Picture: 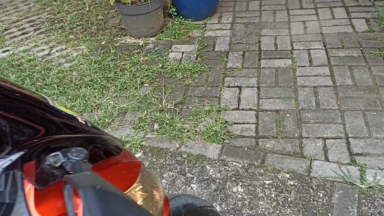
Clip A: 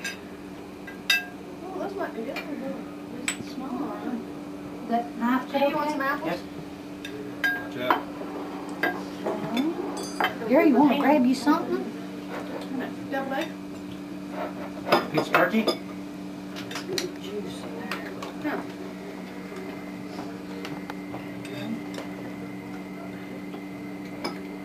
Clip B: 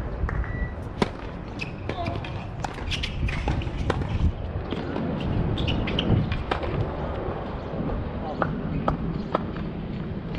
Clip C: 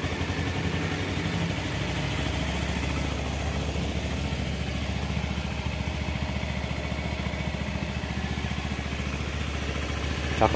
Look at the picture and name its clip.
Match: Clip C